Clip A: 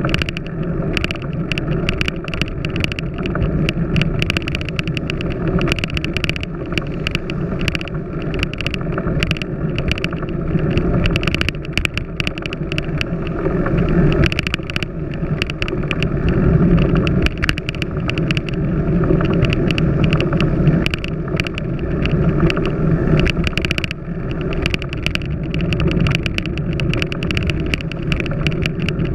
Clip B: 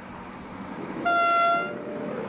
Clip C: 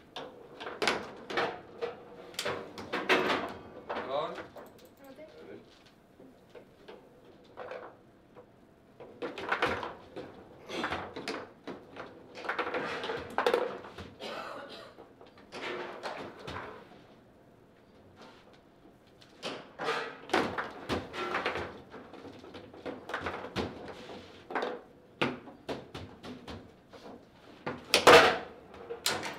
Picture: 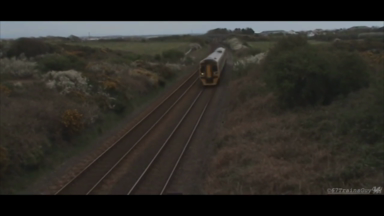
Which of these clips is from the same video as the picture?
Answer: B